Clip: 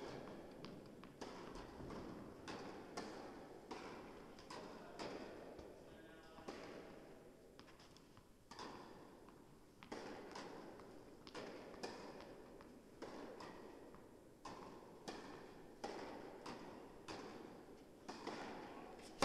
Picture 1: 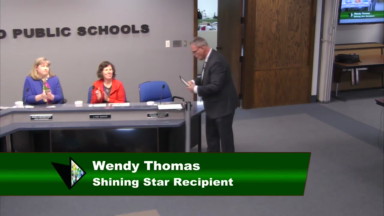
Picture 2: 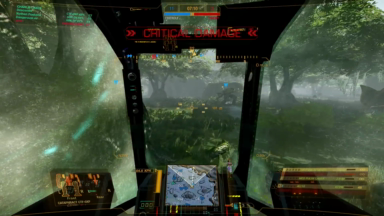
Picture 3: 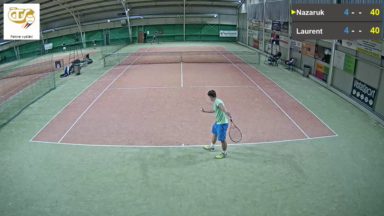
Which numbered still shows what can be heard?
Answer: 3